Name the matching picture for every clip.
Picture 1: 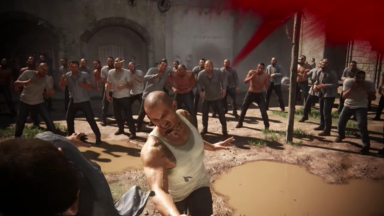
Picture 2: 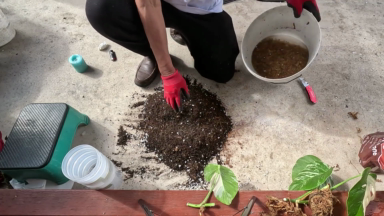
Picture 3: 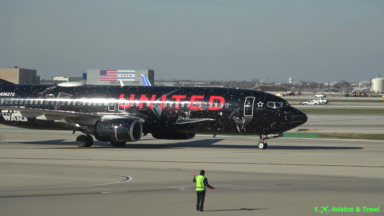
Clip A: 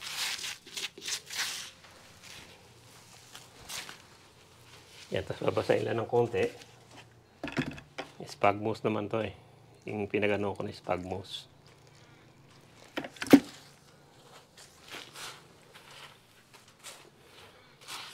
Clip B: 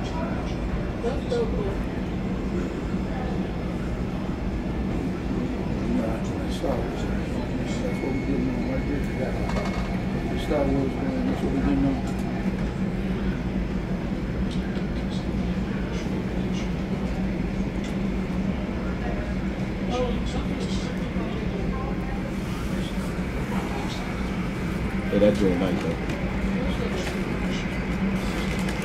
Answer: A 2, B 3